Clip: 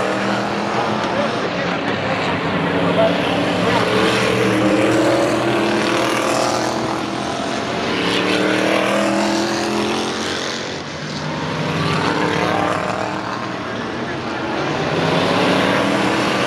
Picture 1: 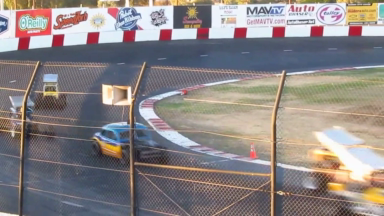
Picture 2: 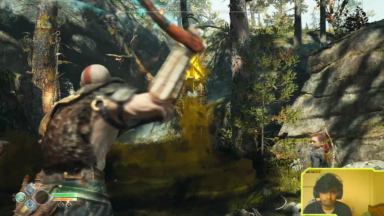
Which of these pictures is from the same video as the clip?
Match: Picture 1